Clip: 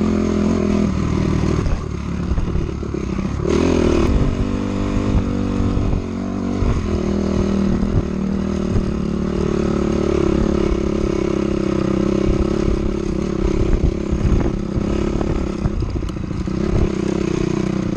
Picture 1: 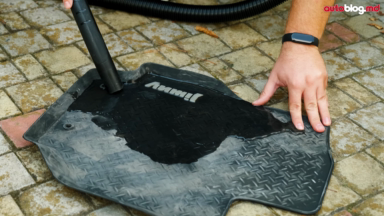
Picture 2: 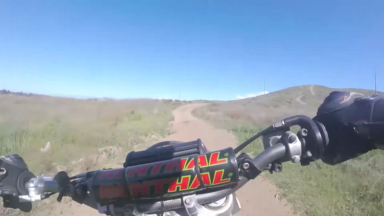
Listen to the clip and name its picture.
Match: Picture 2